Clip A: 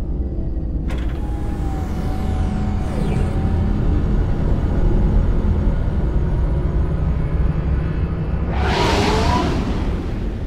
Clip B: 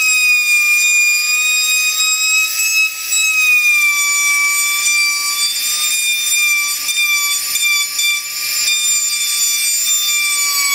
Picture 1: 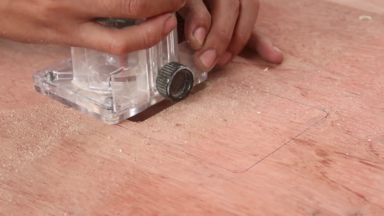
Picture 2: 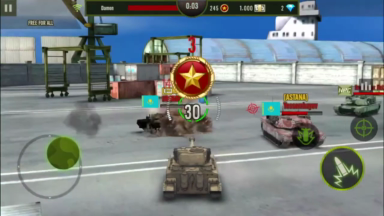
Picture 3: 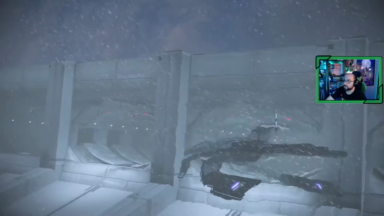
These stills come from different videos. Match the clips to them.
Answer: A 3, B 1